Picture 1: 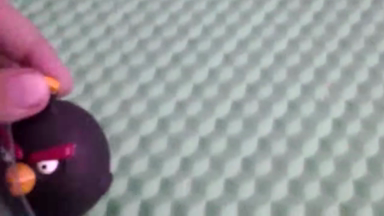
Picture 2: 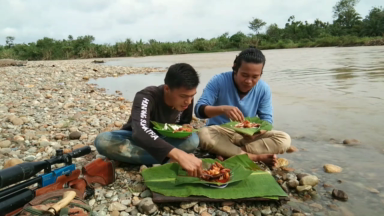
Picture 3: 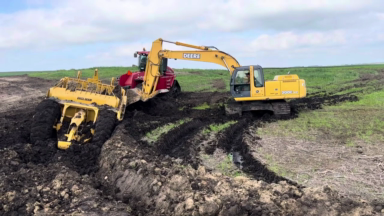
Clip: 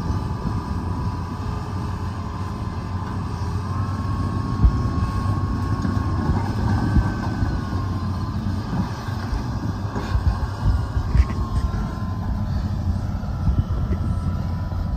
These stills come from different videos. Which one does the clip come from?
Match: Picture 3